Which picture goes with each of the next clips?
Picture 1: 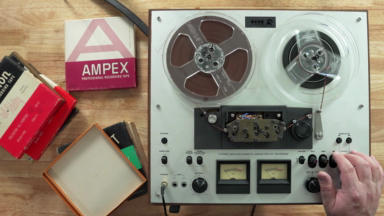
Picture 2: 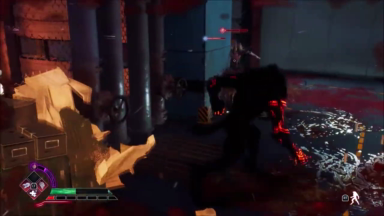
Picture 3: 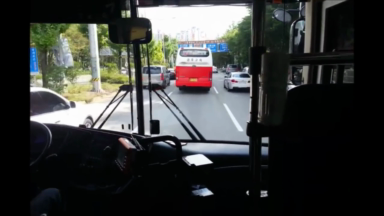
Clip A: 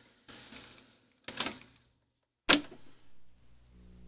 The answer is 1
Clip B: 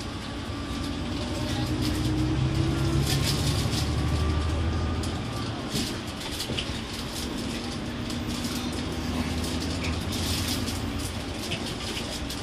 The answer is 3